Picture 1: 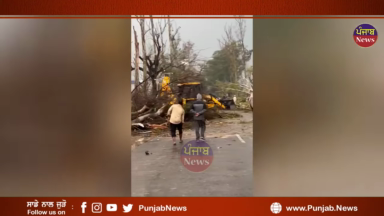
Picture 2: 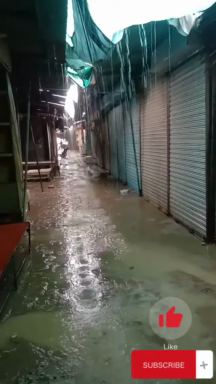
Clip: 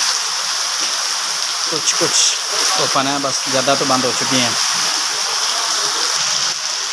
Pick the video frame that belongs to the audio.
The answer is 2